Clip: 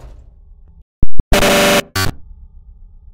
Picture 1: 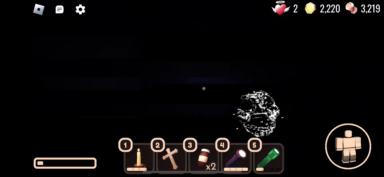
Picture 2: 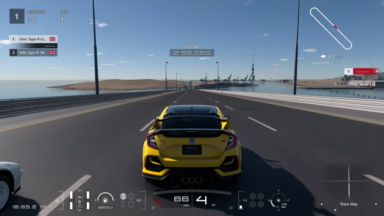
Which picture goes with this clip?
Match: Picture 1